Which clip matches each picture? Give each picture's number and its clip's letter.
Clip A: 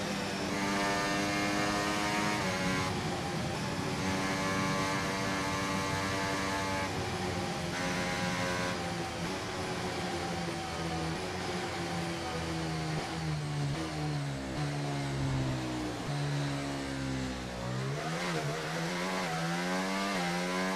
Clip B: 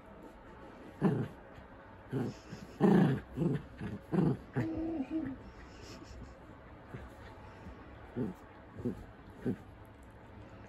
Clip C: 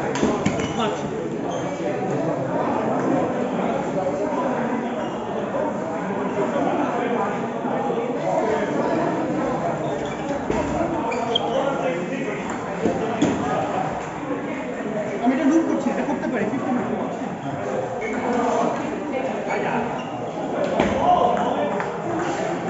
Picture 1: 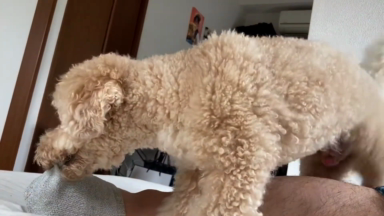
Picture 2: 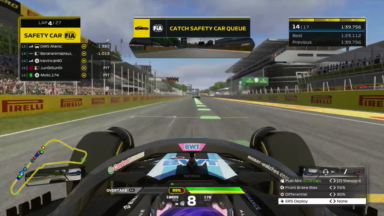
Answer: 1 B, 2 A